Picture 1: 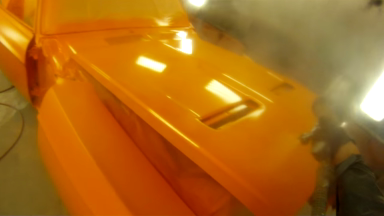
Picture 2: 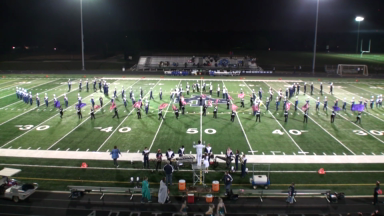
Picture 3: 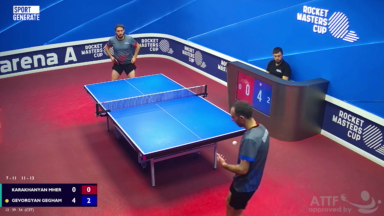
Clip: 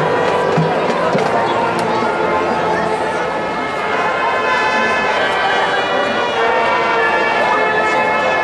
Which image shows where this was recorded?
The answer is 2